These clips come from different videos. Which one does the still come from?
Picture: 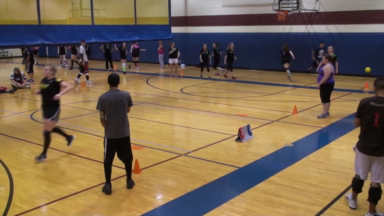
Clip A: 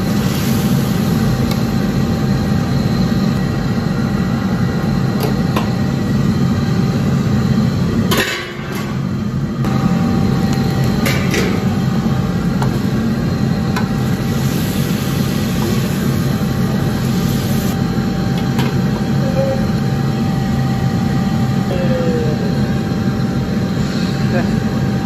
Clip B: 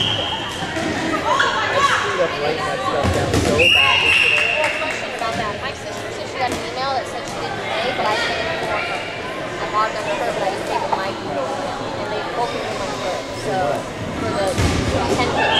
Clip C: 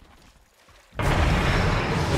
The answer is B